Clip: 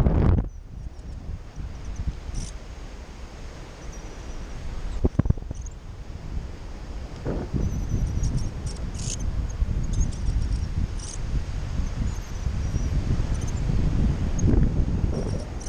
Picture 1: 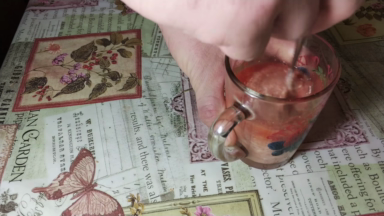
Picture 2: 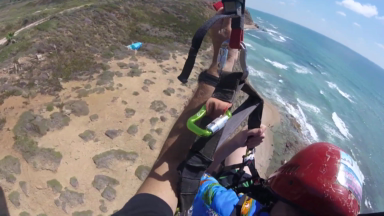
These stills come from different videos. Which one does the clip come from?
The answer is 2